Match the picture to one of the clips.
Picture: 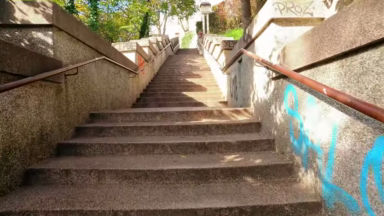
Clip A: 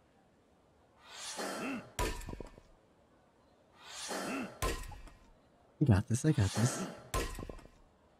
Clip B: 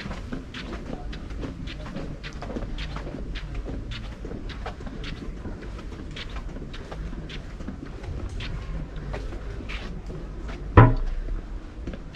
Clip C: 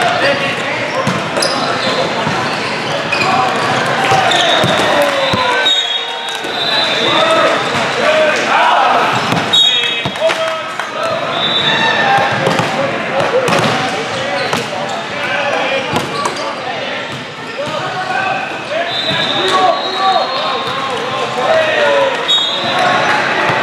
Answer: B